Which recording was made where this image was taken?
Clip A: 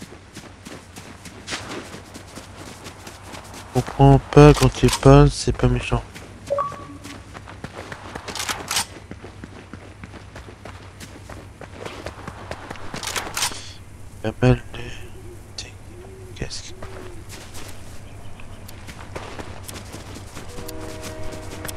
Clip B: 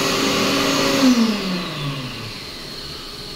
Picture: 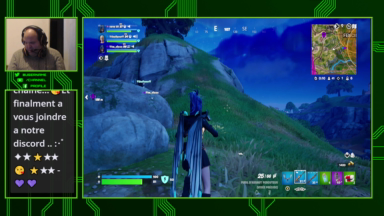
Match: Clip A